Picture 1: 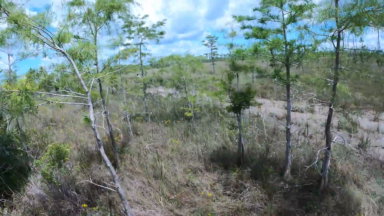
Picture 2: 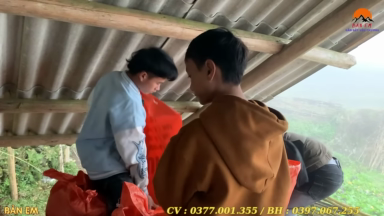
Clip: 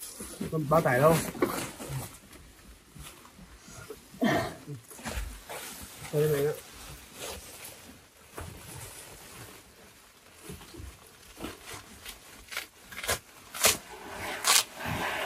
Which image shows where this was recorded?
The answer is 2